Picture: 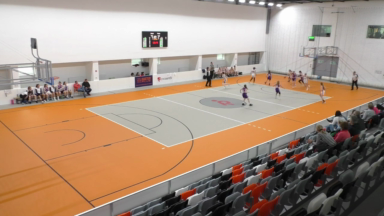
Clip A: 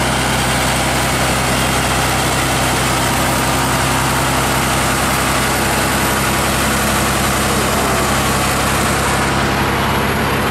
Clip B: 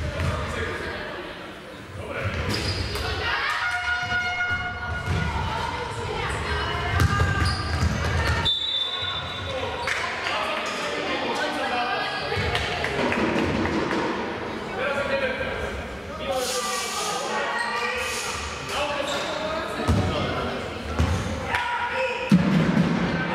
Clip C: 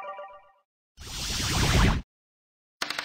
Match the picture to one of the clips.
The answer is B